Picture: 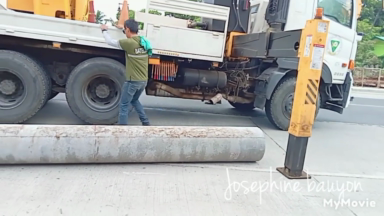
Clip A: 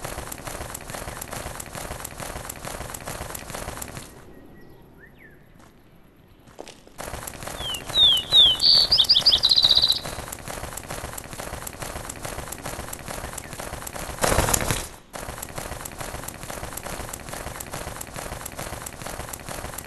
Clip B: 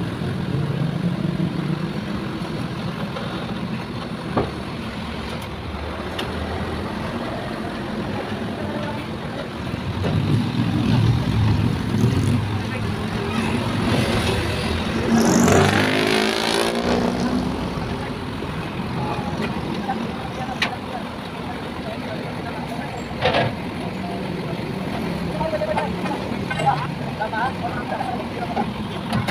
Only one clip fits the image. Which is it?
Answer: B